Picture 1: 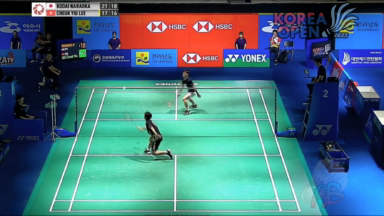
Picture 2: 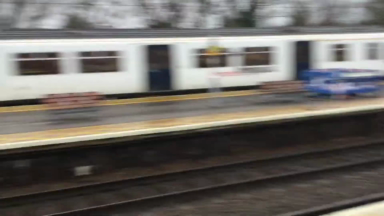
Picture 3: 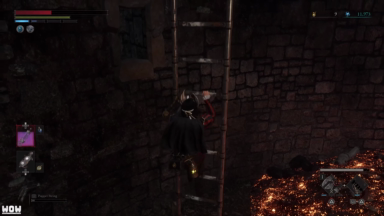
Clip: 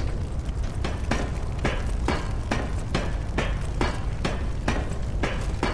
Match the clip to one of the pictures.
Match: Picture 3